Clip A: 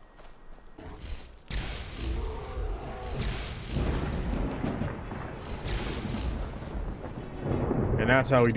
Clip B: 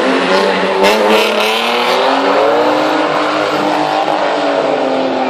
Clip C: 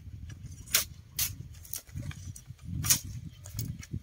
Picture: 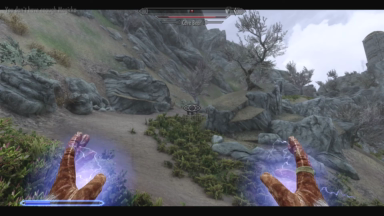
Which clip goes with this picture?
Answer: A